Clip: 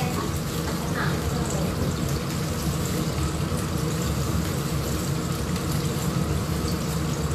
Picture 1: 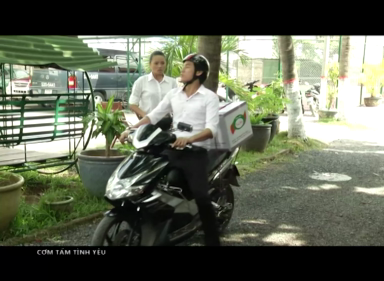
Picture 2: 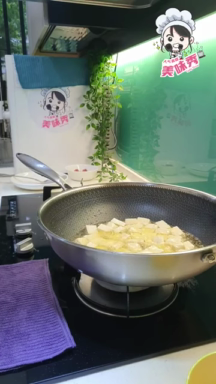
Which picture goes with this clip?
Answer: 2